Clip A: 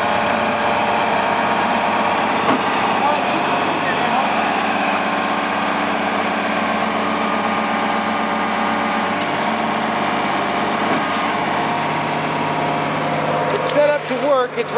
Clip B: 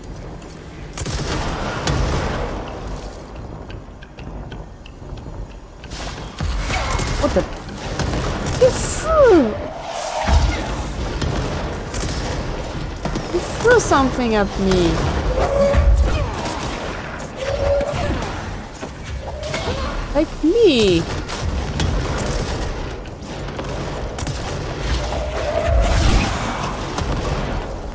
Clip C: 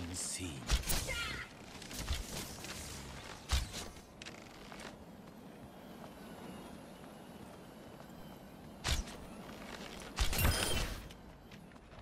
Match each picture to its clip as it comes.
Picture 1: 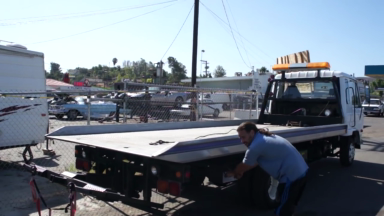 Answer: A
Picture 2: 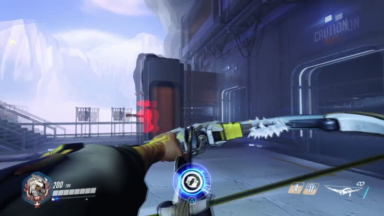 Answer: C